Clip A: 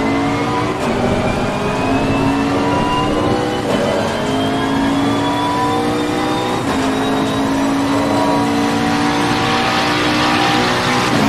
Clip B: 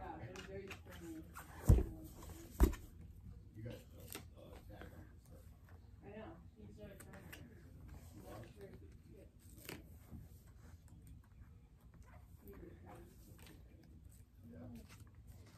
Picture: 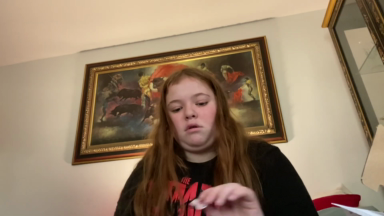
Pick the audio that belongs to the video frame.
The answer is B